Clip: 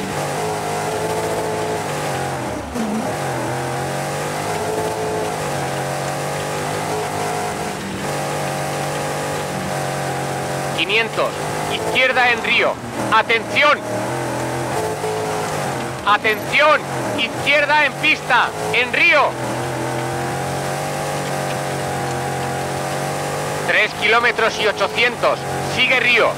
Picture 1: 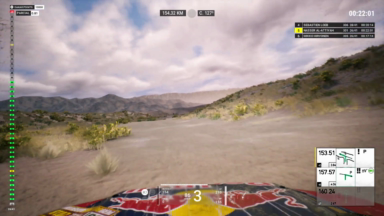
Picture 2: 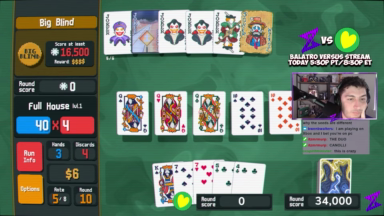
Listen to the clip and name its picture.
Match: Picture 1